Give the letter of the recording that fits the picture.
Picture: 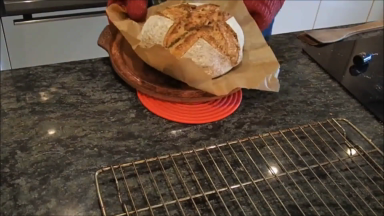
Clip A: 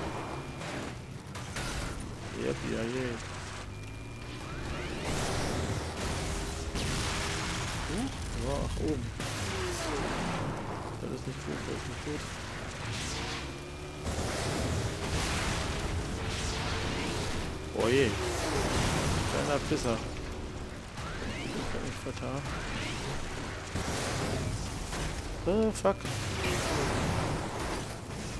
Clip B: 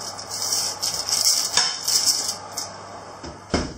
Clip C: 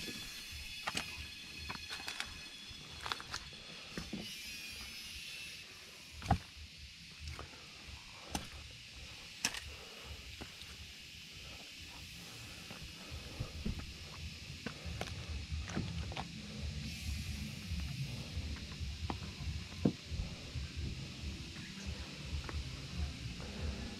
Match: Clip B